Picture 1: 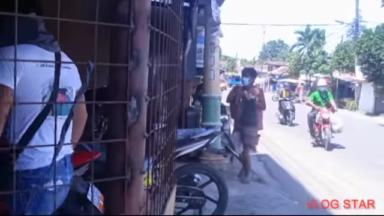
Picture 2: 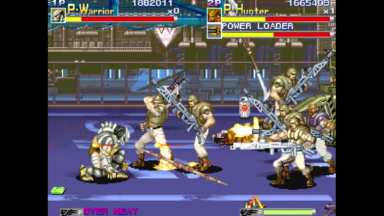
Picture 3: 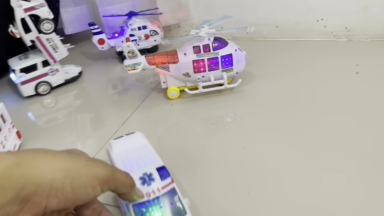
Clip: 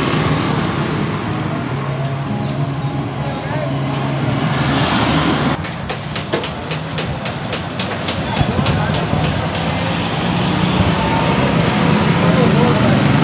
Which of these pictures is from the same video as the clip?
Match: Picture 1